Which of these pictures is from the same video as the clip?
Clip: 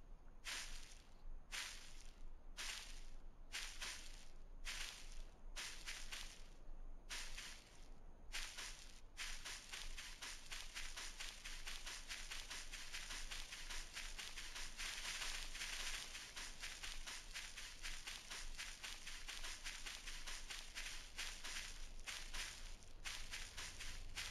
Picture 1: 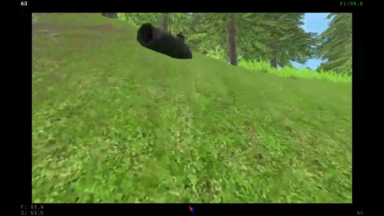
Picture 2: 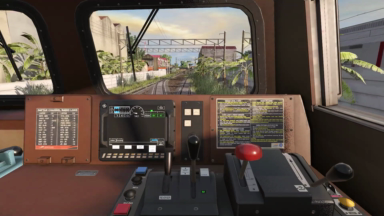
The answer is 1